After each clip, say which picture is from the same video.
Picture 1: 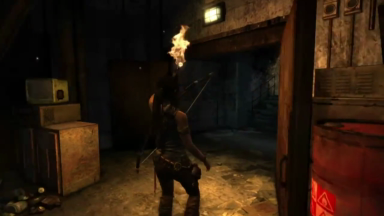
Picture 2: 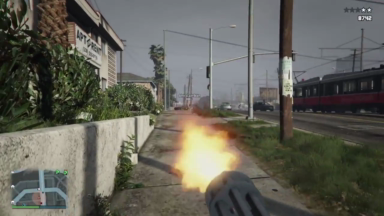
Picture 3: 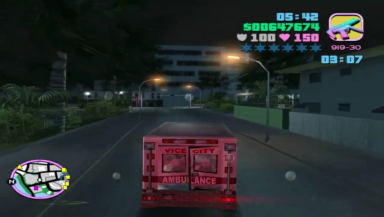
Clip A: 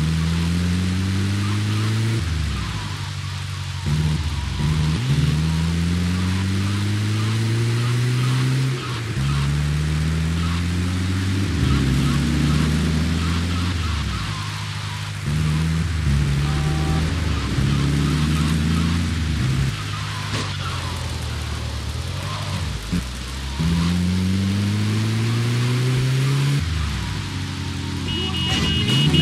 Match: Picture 3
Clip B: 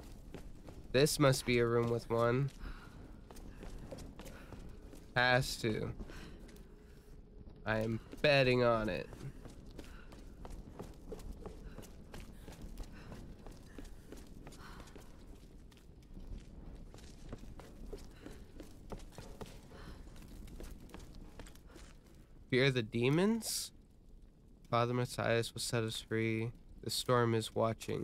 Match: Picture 1